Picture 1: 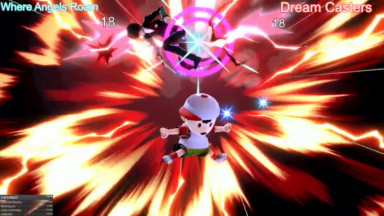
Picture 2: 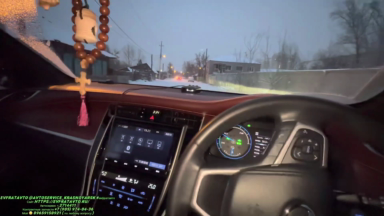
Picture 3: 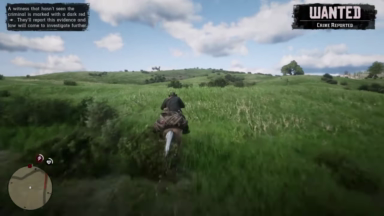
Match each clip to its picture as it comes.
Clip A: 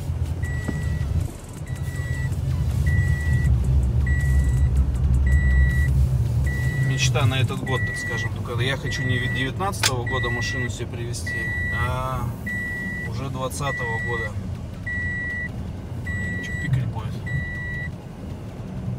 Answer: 2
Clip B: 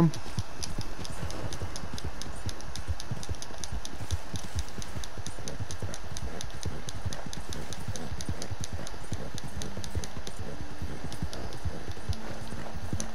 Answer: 3